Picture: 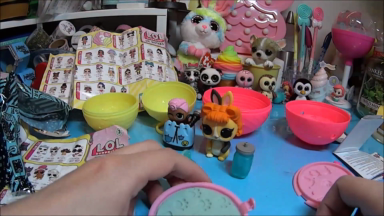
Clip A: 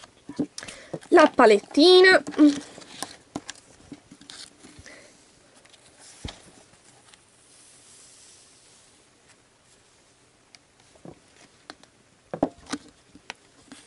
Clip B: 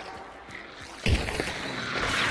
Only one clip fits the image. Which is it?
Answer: A